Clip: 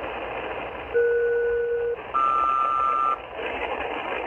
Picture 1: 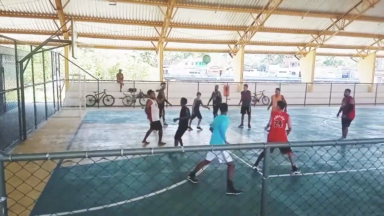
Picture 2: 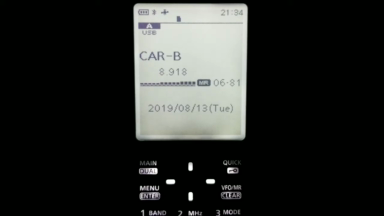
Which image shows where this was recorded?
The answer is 2